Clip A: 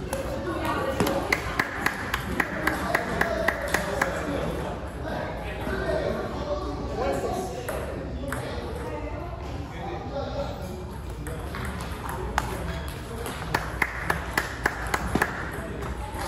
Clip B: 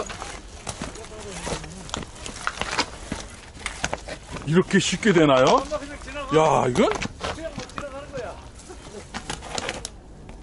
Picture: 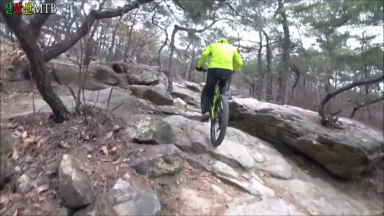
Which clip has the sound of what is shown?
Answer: B